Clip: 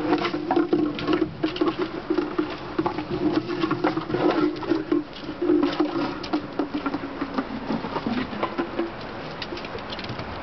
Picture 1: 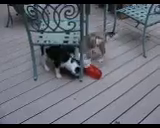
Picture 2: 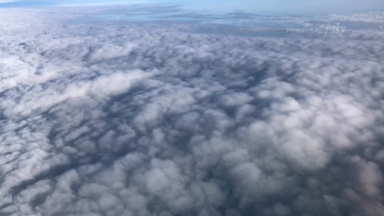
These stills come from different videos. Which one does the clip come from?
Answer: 1